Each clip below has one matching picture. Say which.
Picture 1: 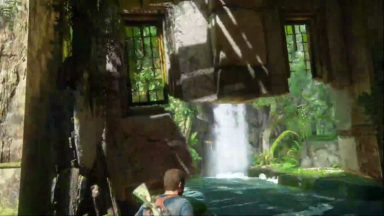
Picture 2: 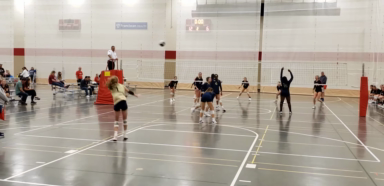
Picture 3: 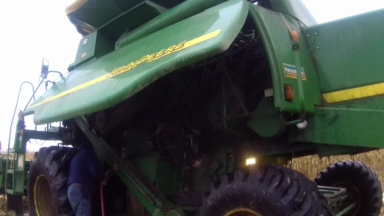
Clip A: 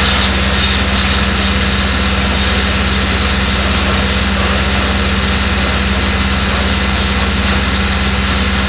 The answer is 3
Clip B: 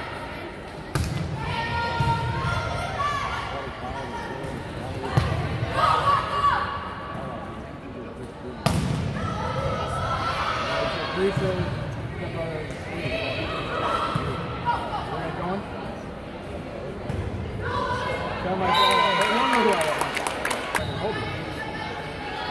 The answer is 2